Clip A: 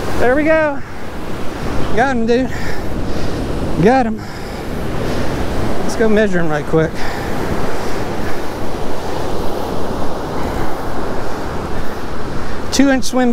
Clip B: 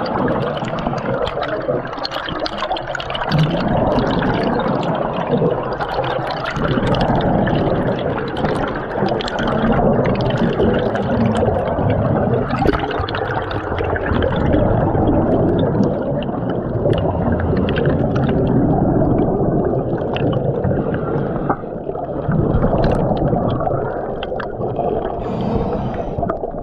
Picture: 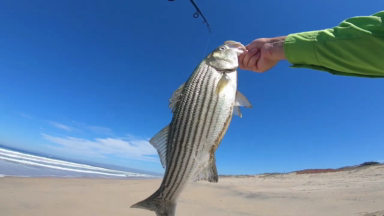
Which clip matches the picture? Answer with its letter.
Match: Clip A